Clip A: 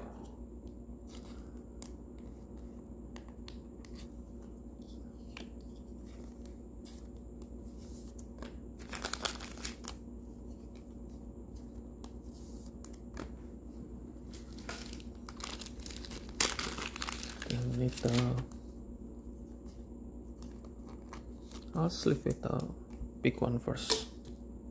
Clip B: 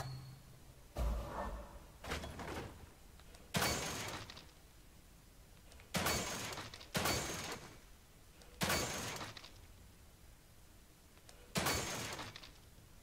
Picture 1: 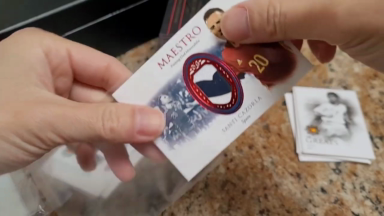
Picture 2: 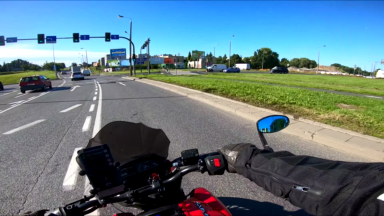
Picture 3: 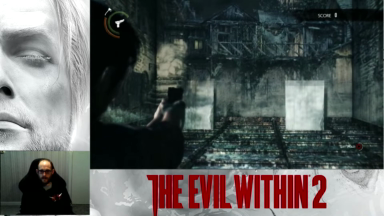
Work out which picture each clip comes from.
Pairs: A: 1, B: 3